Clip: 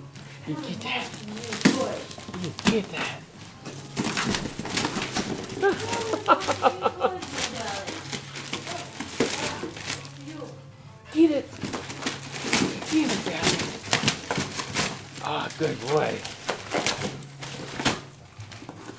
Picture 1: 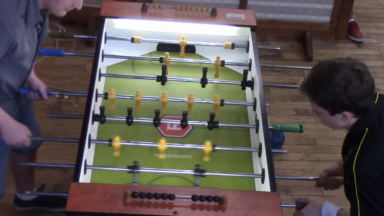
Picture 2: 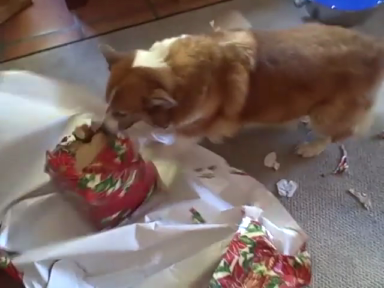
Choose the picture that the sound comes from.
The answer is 2